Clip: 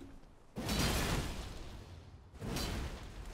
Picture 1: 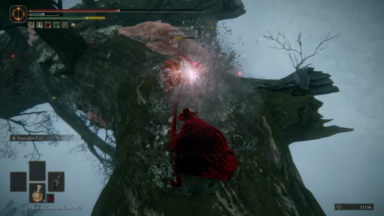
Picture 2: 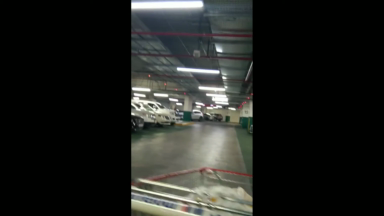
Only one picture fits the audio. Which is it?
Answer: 1